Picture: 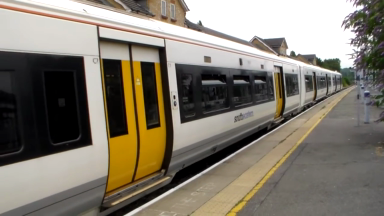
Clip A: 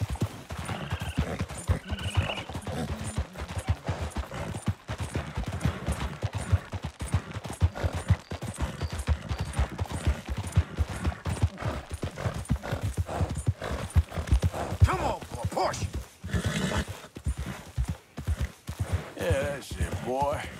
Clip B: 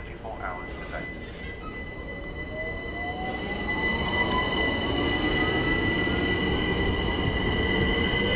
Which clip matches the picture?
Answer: B